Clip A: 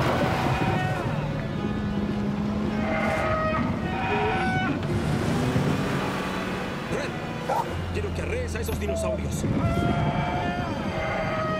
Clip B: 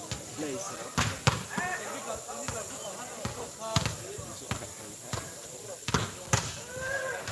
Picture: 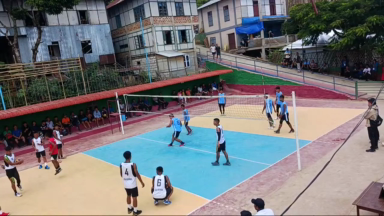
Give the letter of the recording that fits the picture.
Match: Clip B